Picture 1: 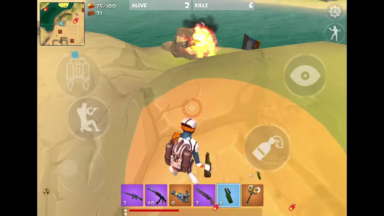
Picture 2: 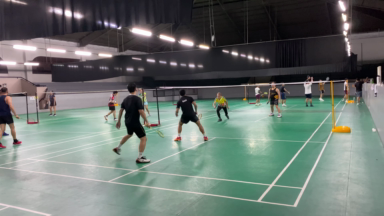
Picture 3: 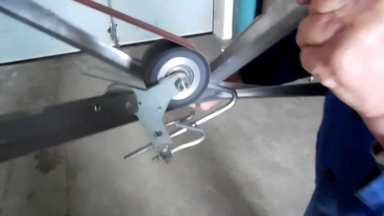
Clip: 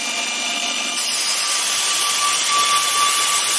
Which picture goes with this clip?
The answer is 3